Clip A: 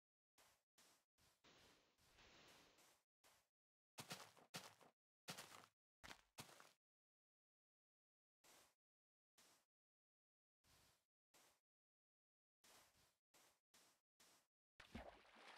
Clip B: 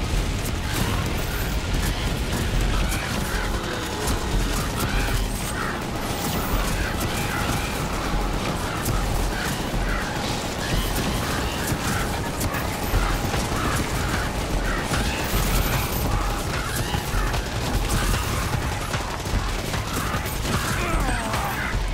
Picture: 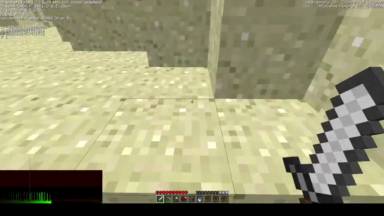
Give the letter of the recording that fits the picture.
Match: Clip A